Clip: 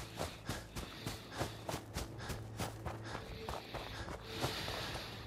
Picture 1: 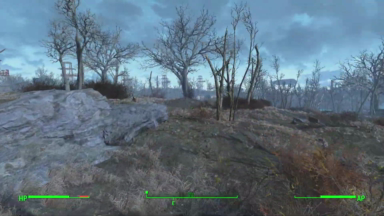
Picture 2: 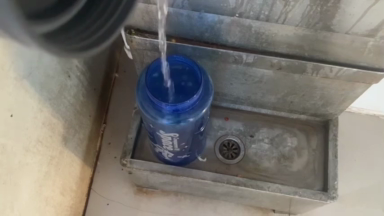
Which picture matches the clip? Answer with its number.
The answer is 1